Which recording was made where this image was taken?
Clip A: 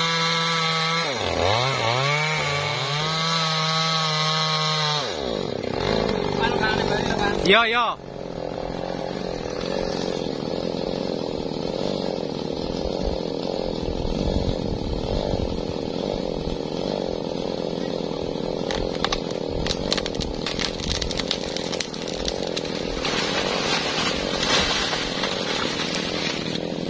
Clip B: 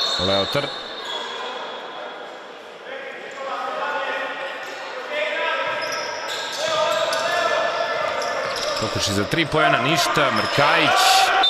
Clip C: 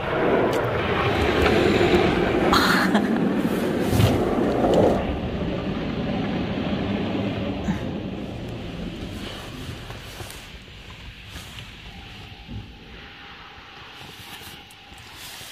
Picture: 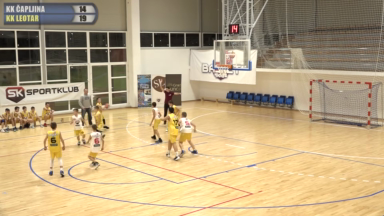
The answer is B